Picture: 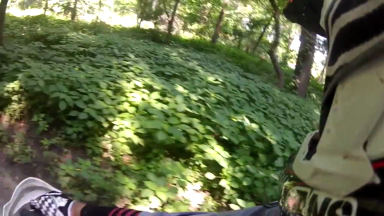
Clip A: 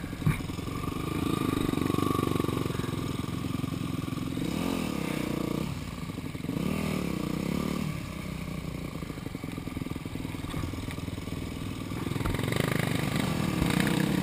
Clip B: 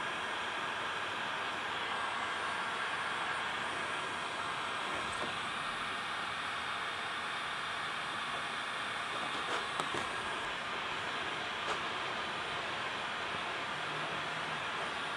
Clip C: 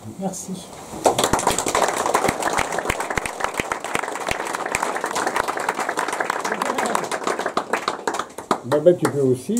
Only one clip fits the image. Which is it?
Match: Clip A